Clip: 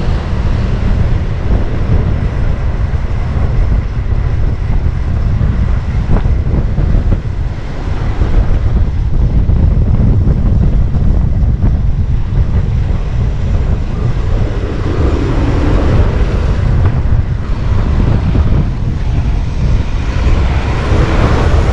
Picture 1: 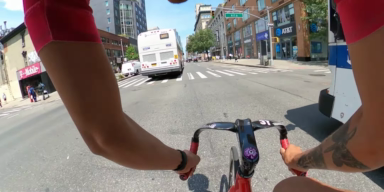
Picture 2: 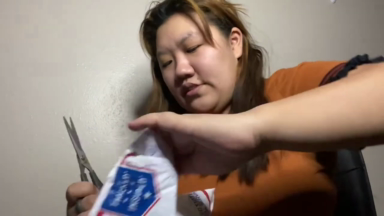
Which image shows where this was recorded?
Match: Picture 1